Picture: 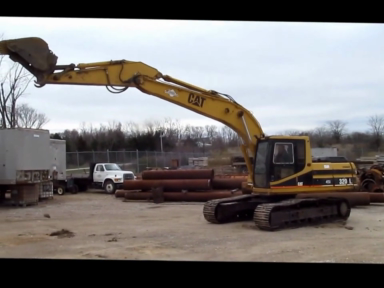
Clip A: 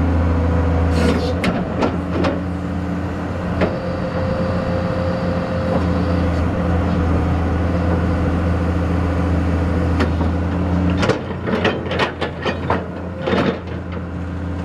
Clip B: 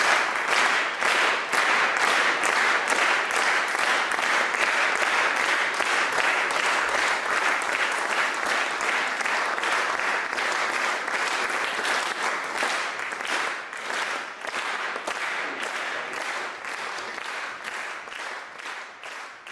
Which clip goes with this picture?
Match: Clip A